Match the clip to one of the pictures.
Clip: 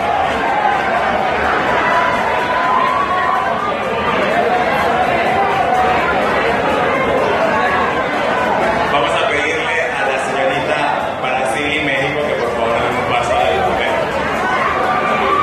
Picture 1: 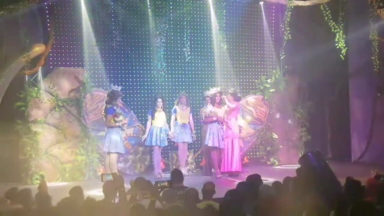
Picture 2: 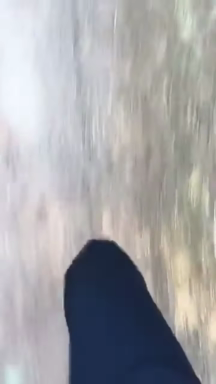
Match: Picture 1